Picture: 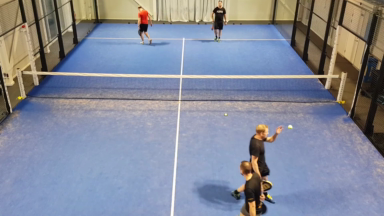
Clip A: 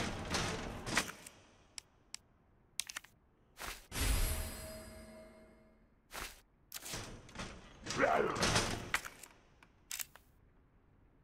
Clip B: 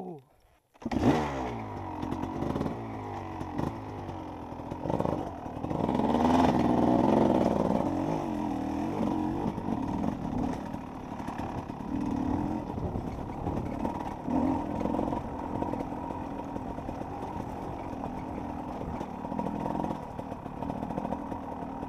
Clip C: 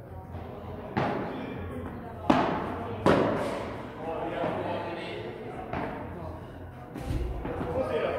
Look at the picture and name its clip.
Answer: C